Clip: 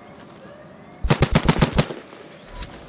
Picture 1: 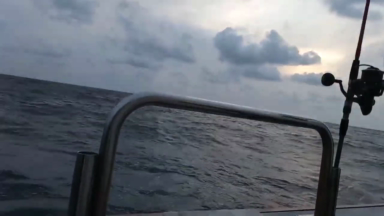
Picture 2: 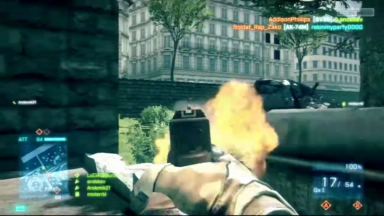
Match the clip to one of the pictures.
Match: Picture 2